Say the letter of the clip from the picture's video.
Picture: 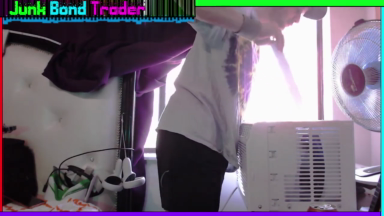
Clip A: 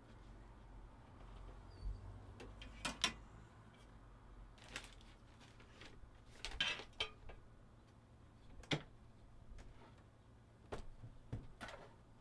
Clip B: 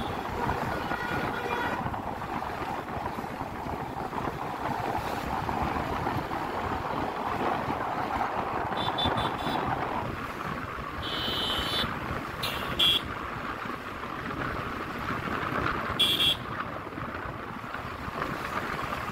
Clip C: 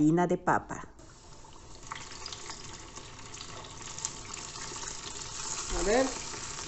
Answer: A